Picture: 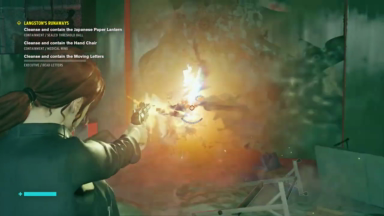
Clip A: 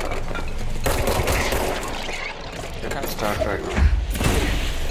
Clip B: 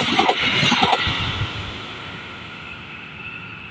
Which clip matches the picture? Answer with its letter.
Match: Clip A